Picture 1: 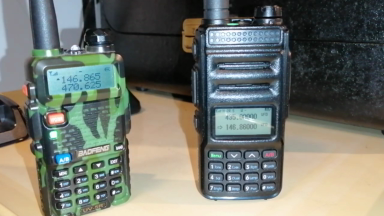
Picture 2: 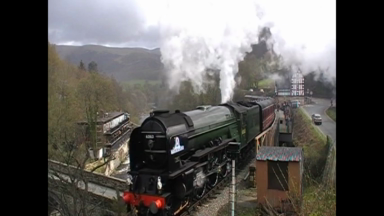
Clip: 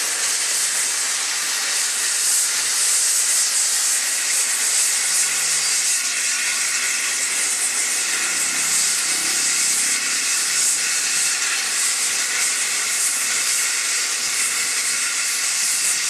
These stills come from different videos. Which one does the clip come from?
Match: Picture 2